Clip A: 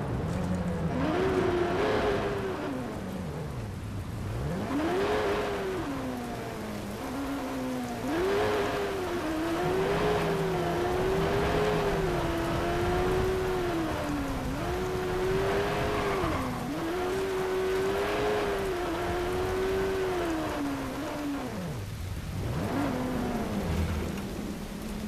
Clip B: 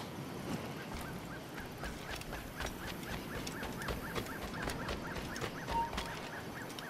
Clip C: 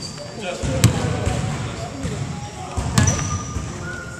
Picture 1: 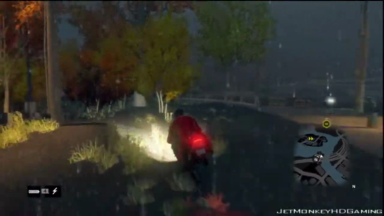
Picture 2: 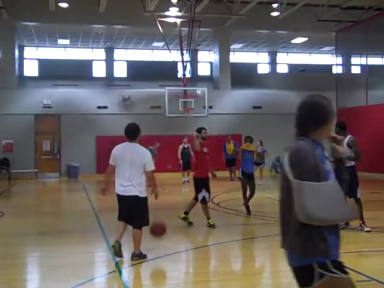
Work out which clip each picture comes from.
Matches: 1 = A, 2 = C